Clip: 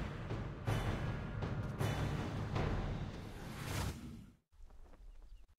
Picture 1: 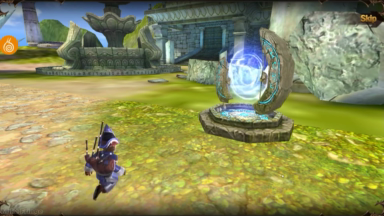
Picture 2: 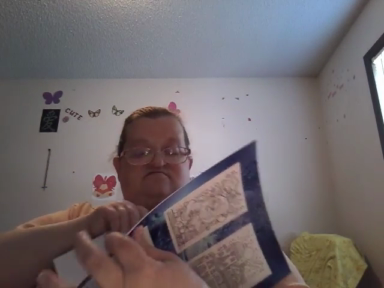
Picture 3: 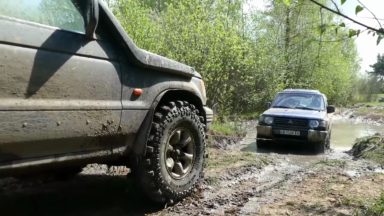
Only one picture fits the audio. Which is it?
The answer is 1